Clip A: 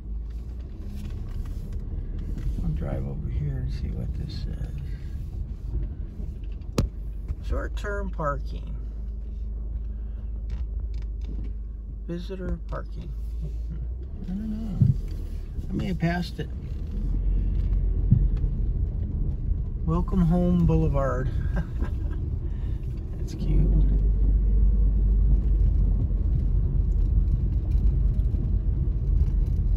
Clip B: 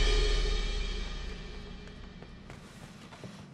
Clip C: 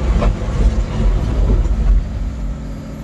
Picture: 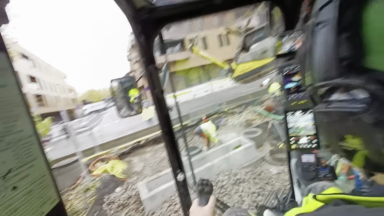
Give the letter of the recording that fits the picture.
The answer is C